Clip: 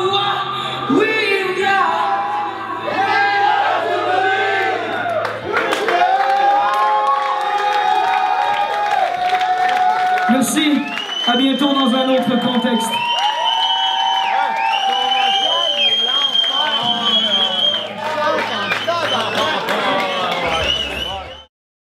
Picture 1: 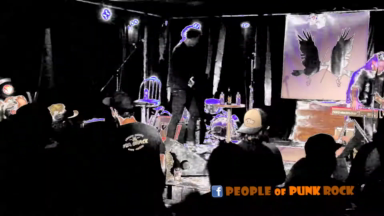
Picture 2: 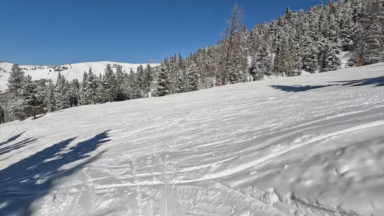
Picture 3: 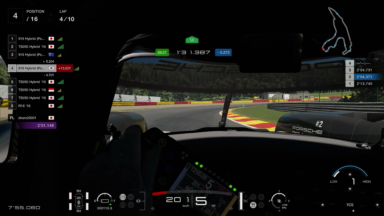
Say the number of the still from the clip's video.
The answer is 1